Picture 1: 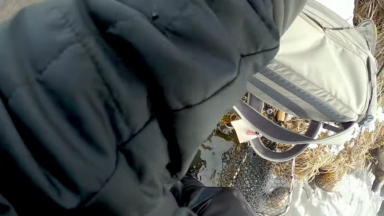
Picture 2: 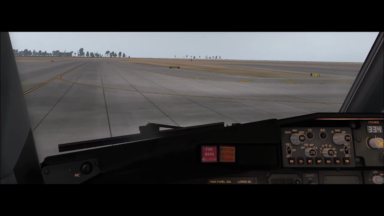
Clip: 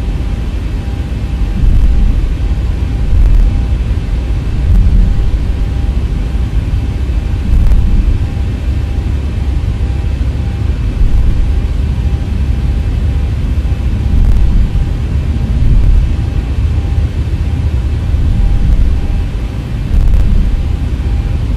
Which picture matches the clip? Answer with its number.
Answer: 2